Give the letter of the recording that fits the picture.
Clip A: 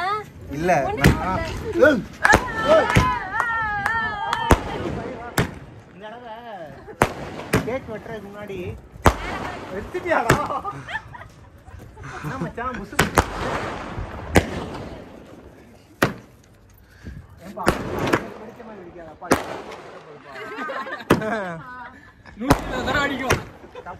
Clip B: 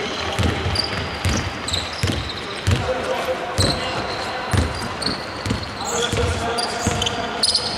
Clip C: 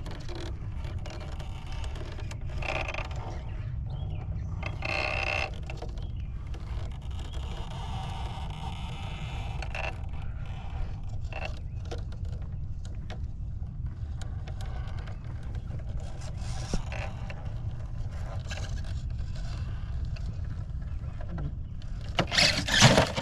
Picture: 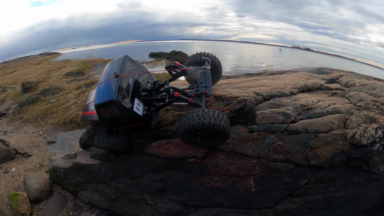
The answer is C